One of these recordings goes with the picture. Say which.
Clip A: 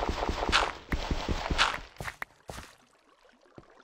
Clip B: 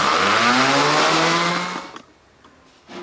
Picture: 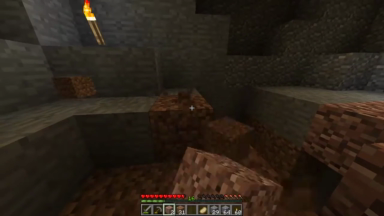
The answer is A